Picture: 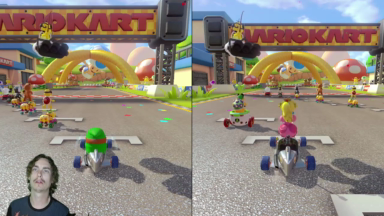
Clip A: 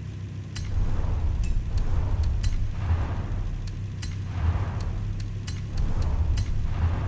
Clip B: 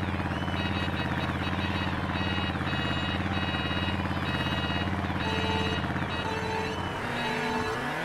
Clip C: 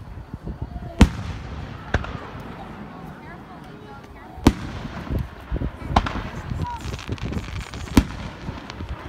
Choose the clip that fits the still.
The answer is B